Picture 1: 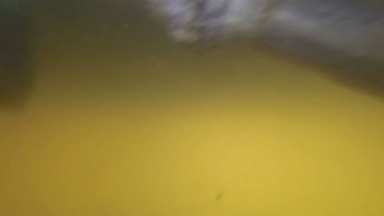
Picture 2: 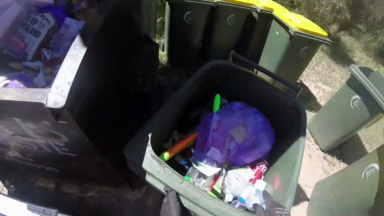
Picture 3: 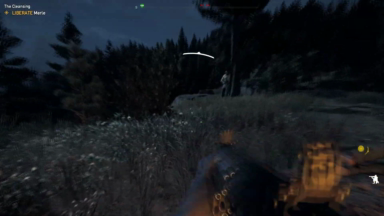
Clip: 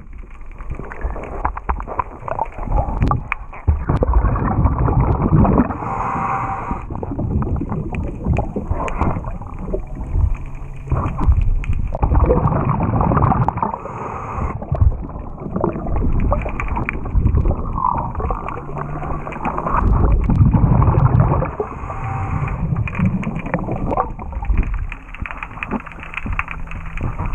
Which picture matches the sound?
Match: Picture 1